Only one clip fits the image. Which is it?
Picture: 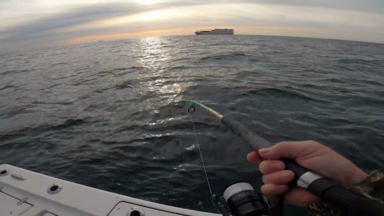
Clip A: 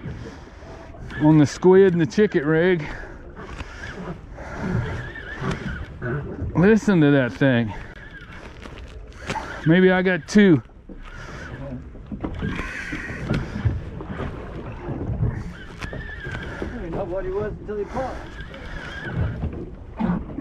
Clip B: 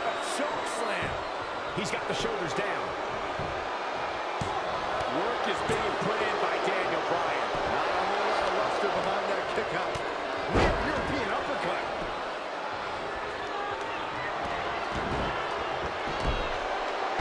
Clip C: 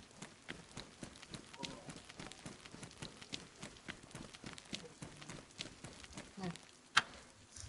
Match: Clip A